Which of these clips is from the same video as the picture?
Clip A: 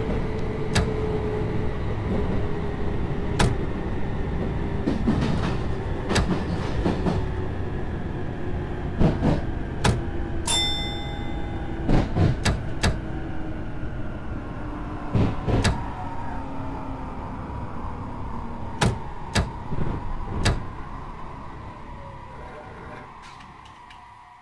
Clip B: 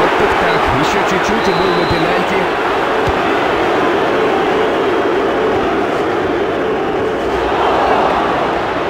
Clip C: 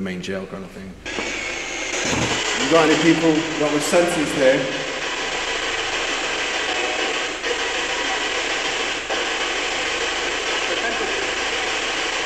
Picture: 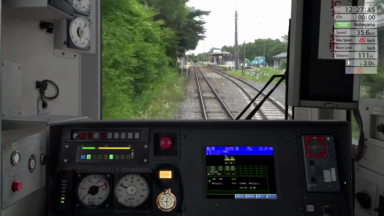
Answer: A